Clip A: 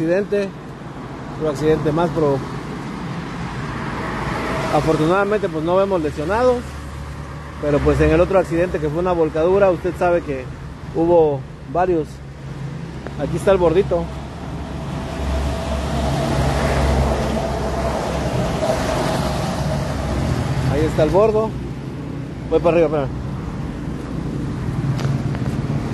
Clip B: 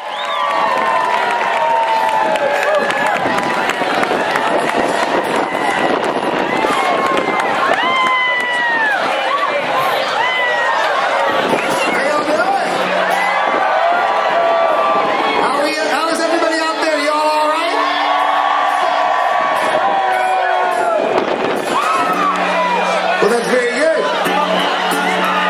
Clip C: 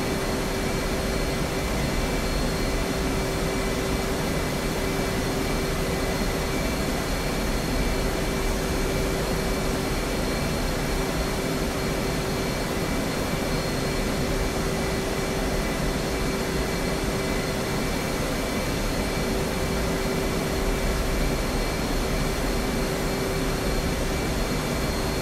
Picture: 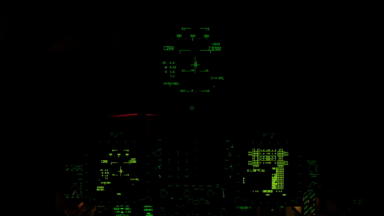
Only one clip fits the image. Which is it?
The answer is C